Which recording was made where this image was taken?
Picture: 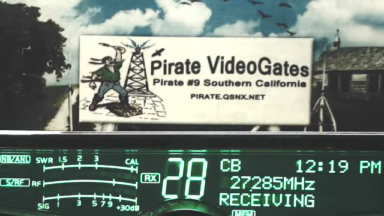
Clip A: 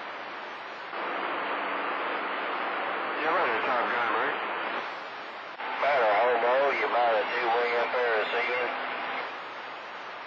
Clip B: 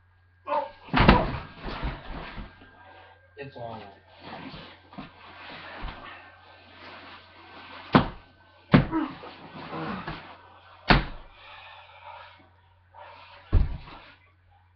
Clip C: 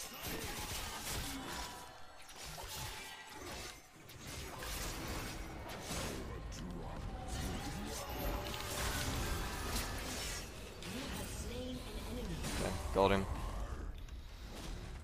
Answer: A